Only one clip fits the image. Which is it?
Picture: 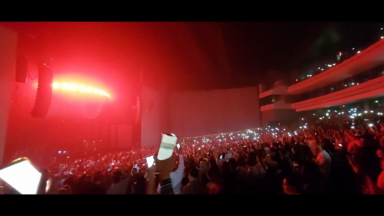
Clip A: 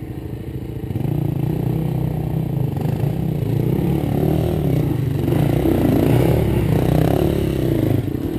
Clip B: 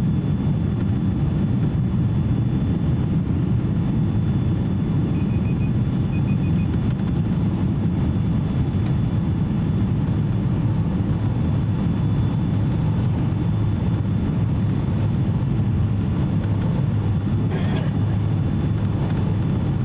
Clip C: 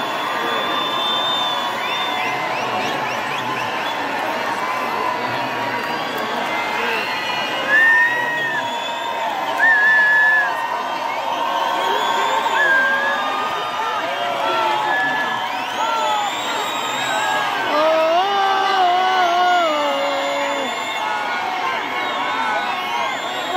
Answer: C